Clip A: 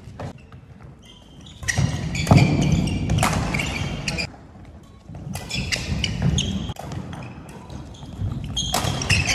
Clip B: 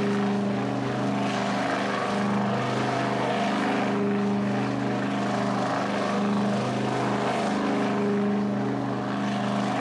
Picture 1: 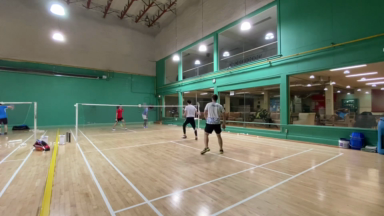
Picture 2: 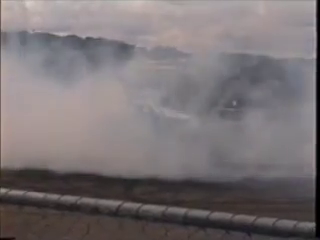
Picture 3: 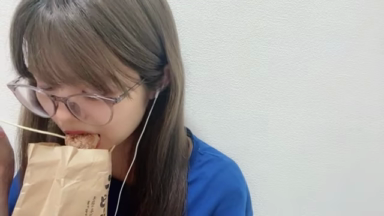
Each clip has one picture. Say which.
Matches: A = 1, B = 2